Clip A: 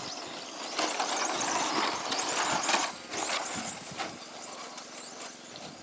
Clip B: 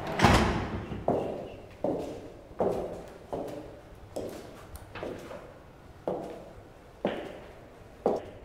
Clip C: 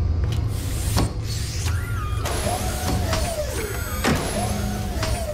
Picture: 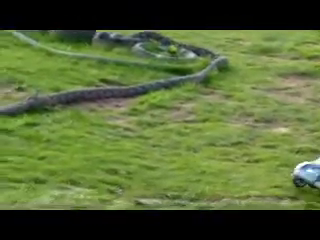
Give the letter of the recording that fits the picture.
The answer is A